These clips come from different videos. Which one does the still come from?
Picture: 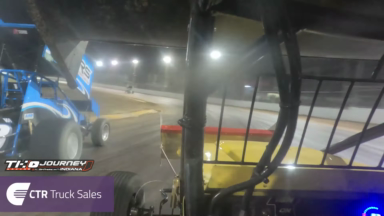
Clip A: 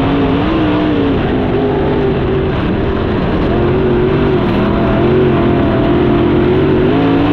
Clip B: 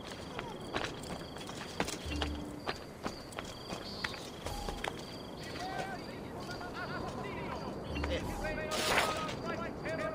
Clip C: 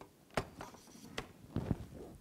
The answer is A